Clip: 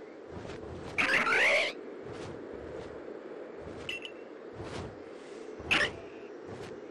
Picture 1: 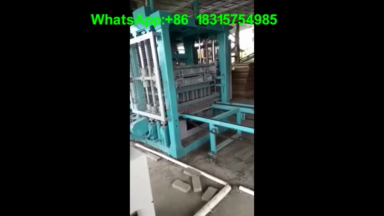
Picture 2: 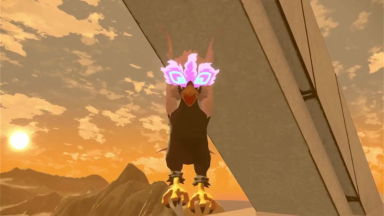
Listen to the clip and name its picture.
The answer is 2